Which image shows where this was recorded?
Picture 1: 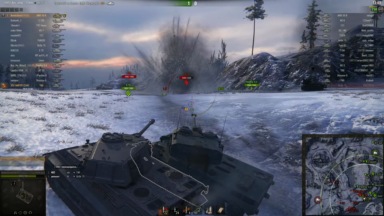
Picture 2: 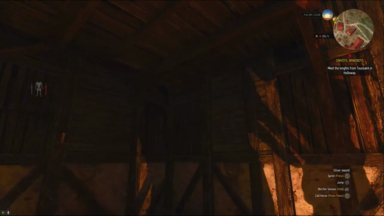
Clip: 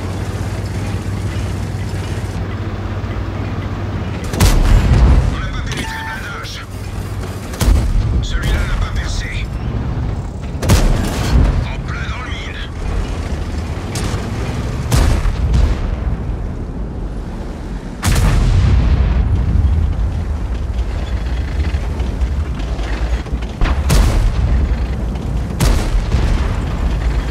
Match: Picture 1